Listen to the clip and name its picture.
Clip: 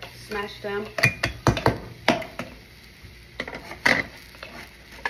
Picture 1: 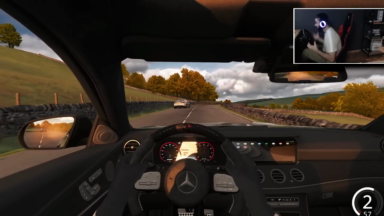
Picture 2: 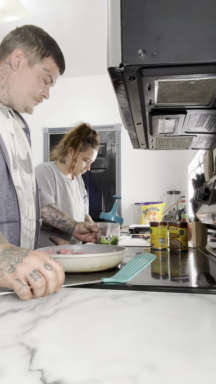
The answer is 2